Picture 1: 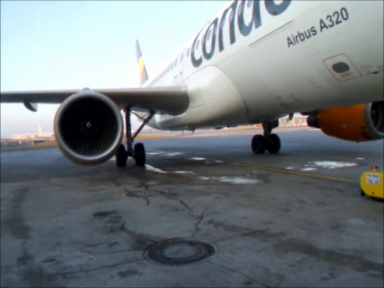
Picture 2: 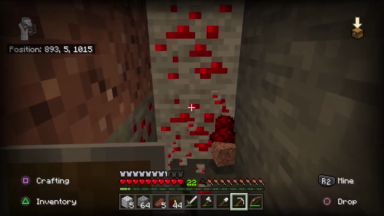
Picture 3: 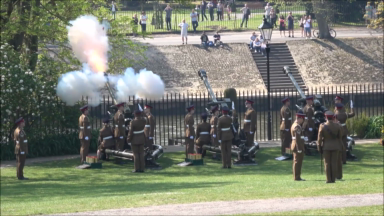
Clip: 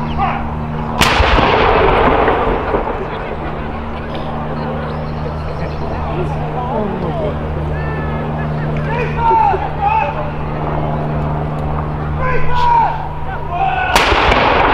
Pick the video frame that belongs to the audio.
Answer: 3